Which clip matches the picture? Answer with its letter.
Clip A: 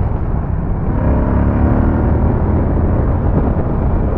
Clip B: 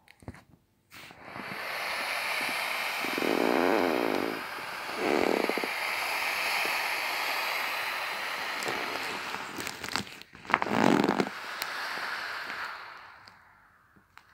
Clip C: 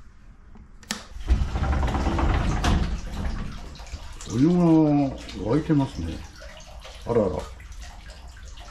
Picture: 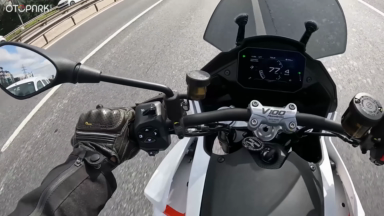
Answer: A